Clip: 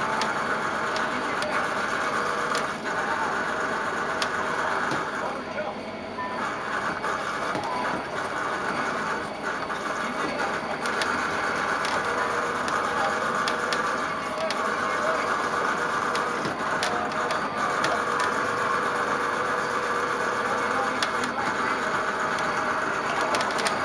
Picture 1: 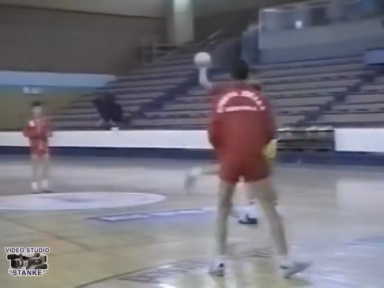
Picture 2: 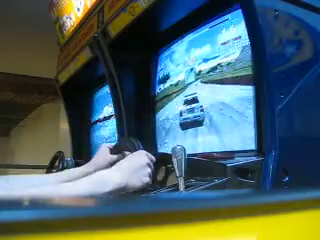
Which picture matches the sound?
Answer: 2